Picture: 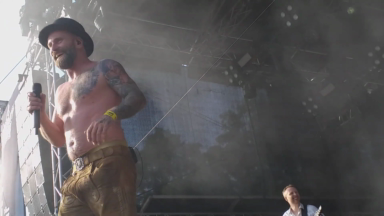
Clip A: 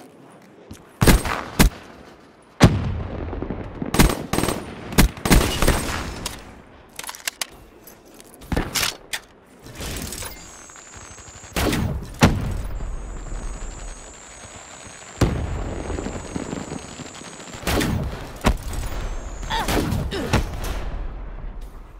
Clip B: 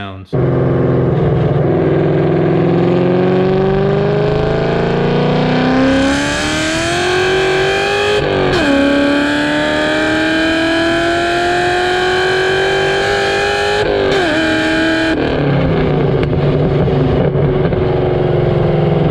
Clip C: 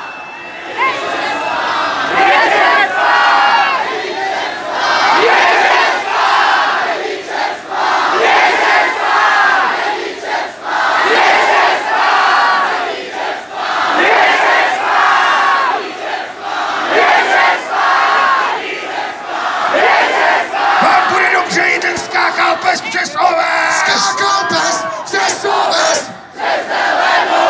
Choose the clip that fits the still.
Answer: C